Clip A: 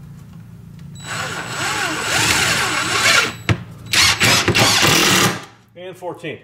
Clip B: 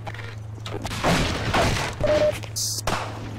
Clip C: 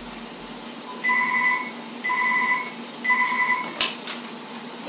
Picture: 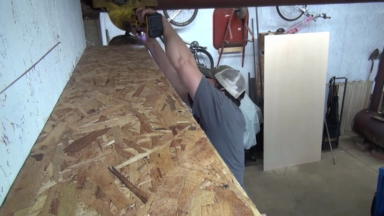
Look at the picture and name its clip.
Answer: A